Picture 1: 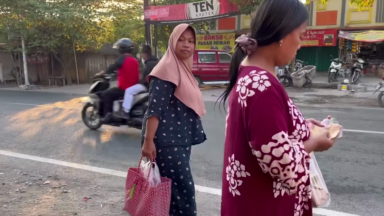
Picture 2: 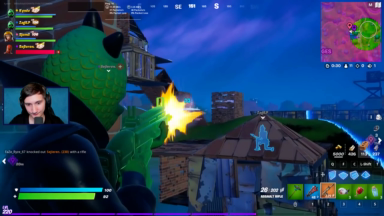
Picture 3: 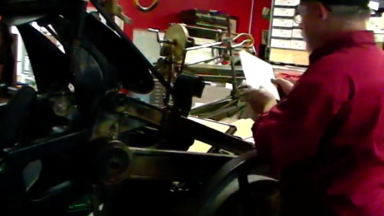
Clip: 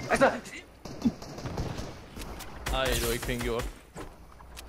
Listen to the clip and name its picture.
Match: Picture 2